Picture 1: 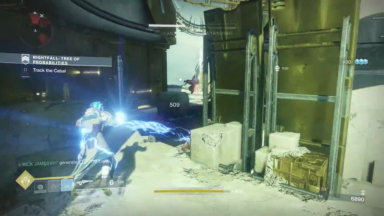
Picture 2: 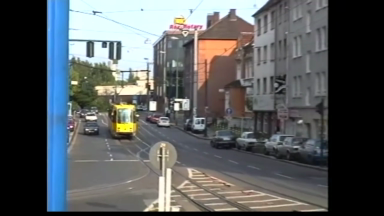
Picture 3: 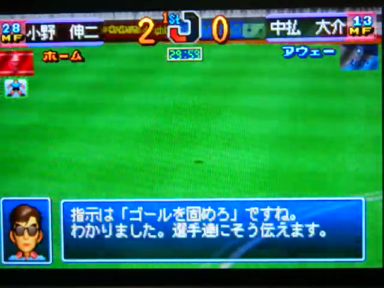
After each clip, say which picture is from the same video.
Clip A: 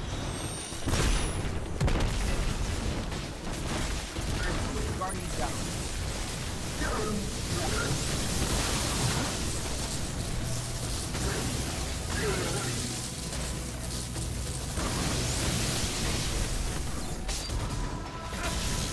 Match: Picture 1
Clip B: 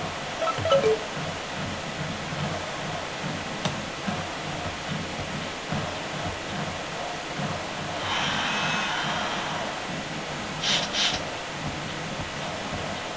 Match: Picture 3